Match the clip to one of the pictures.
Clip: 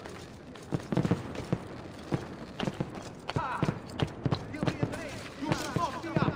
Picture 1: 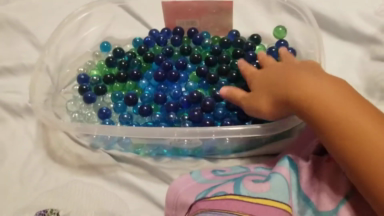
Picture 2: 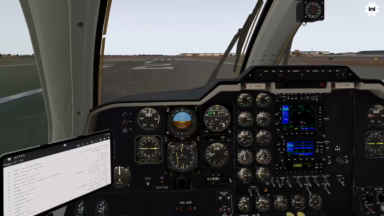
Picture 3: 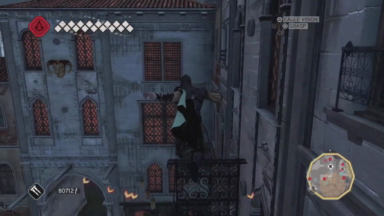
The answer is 3